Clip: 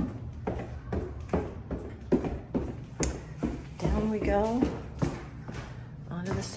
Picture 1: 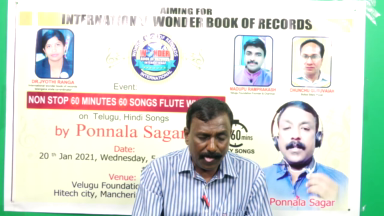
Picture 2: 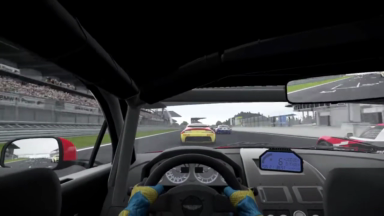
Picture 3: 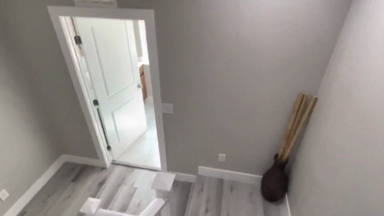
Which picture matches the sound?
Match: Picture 3